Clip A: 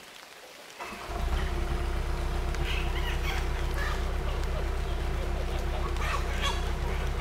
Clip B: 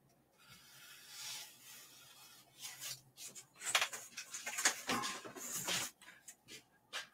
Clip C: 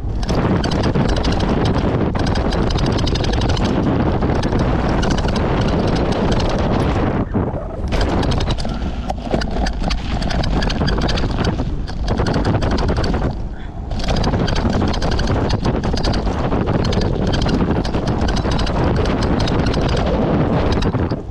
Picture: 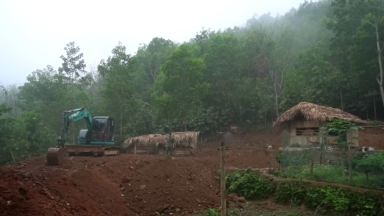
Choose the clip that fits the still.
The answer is A